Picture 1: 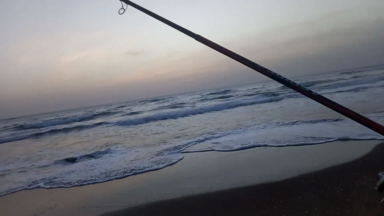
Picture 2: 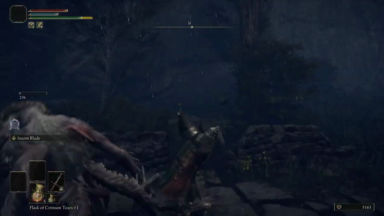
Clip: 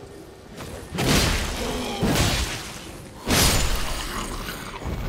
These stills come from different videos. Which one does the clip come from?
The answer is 2